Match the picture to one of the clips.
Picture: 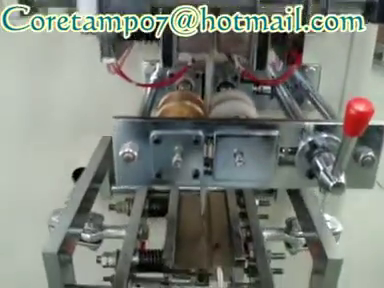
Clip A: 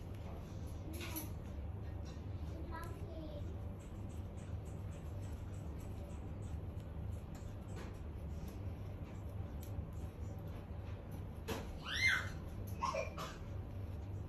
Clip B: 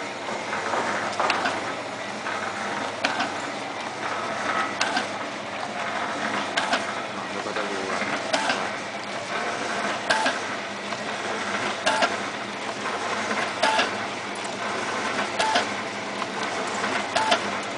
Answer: B